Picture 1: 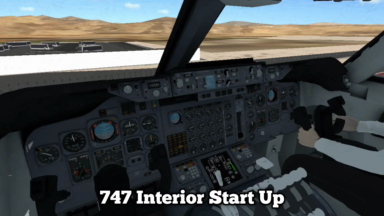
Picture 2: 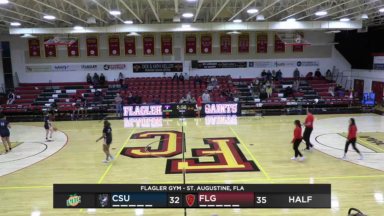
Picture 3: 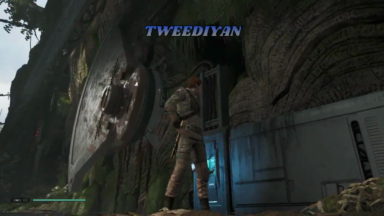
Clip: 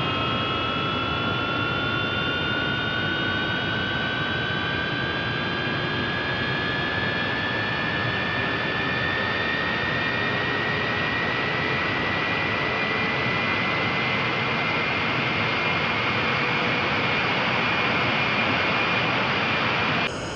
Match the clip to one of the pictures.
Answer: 1